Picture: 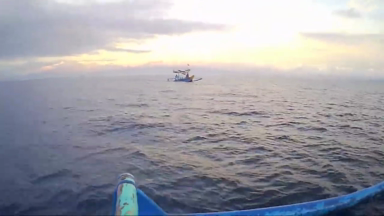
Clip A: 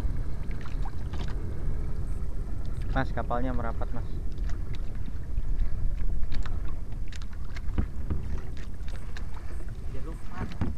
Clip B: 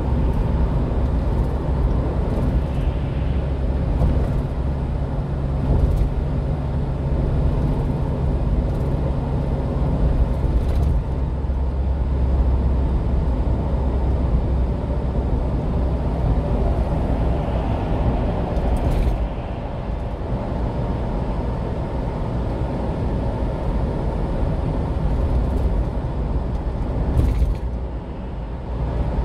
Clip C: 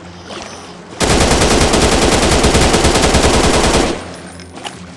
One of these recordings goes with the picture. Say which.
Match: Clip A